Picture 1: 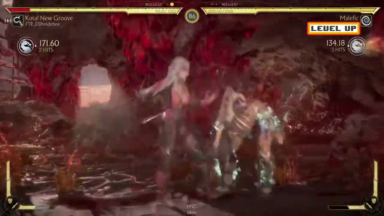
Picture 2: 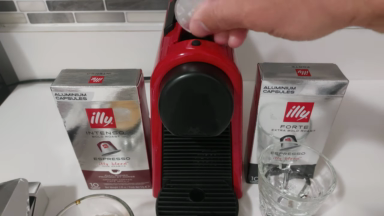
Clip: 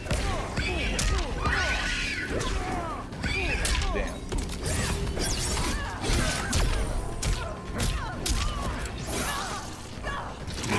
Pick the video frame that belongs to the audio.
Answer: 1